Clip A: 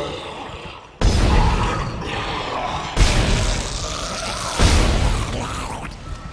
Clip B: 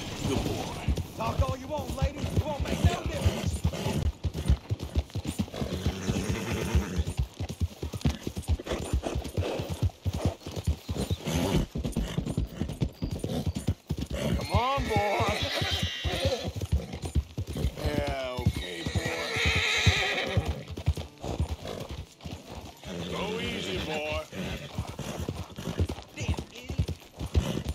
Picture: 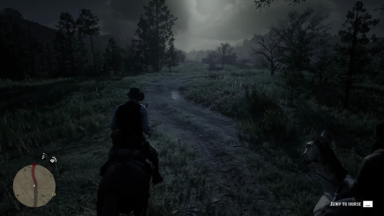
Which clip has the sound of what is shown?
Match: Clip B